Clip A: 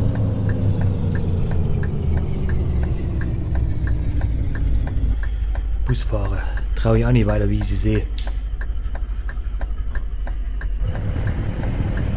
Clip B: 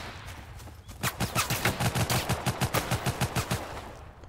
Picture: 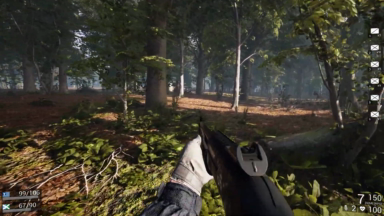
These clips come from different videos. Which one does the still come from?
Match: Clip B